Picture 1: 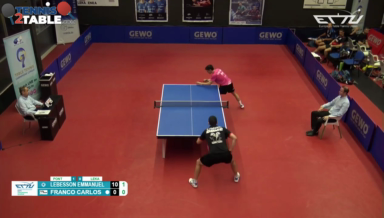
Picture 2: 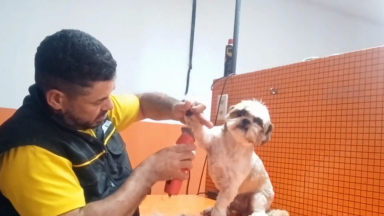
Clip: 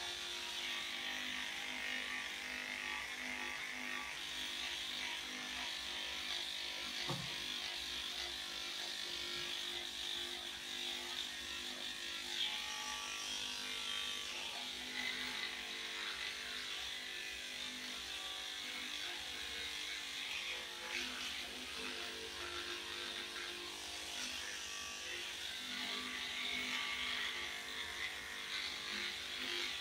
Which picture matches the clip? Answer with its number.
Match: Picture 2